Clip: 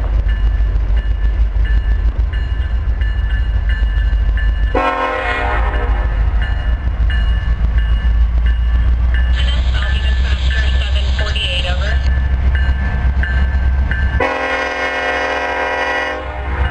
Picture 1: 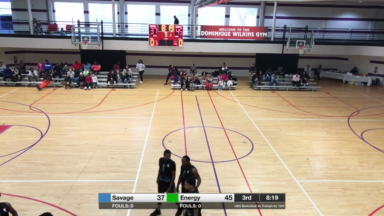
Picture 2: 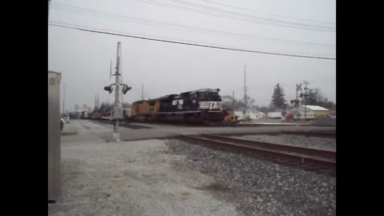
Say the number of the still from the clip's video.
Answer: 2